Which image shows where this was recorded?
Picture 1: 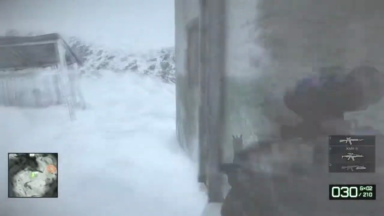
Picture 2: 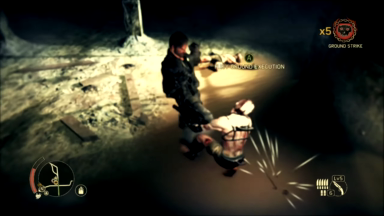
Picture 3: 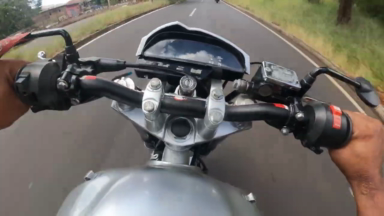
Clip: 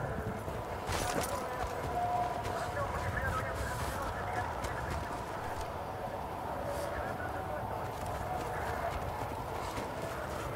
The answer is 1